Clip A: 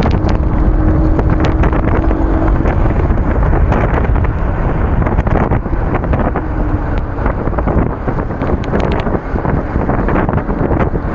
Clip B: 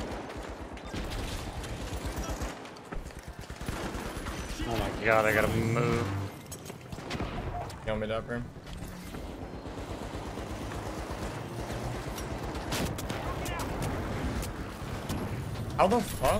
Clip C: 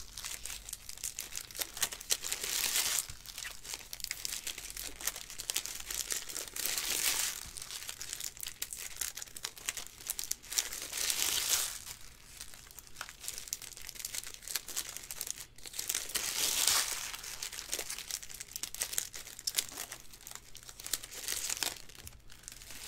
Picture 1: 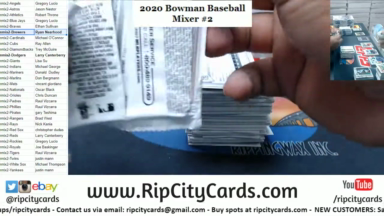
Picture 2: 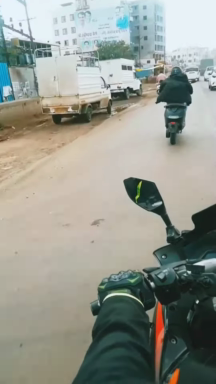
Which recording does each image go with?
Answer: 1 C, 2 A